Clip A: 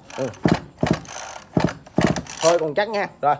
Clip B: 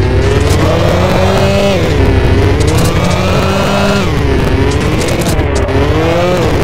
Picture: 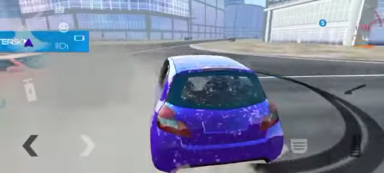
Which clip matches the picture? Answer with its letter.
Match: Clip B